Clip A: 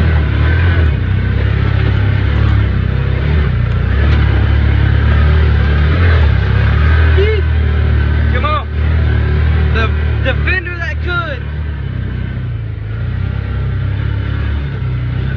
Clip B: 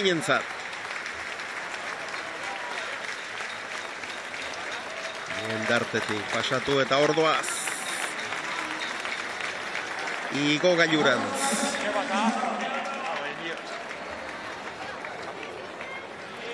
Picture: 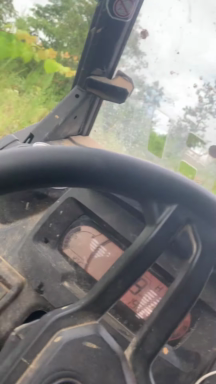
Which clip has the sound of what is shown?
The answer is A